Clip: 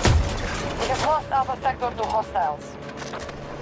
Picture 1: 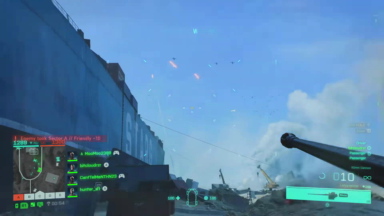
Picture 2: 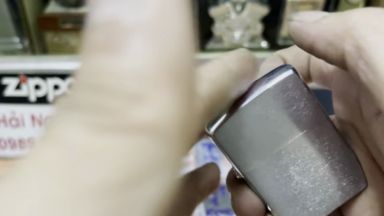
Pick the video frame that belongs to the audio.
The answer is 1